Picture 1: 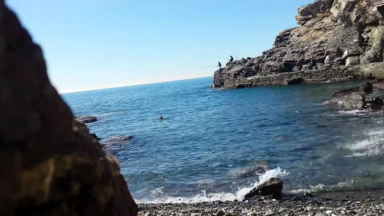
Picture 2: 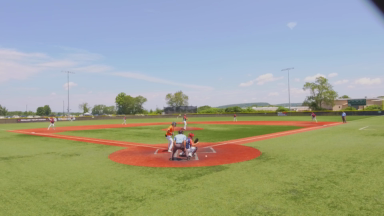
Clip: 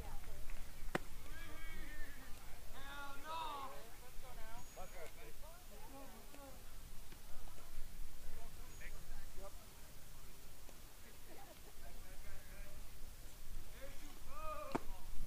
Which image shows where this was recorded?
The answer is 2